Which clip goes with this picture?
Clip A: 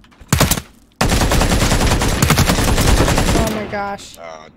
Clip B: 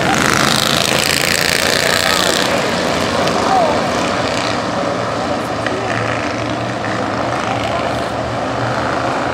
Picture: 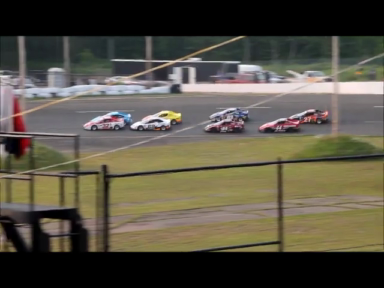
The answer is B